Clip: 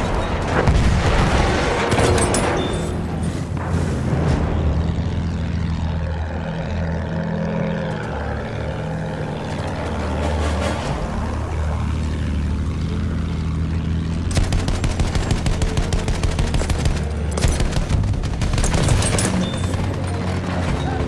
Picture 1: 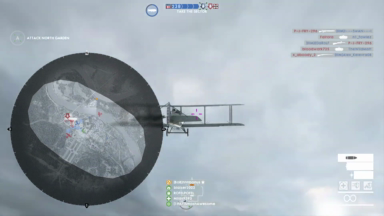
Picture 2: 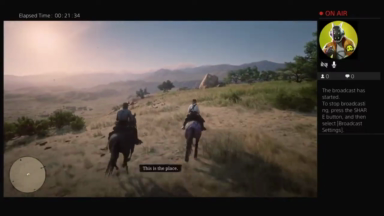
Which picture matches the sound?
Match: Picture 1